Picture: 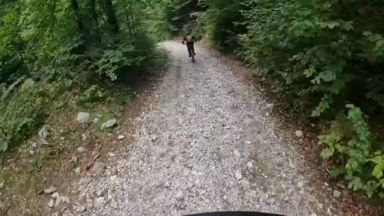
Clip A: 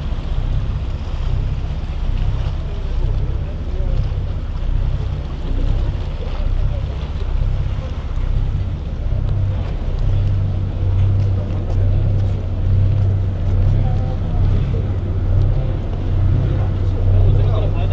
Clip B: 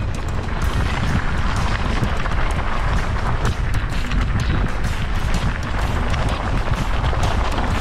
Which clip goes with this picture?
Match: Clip B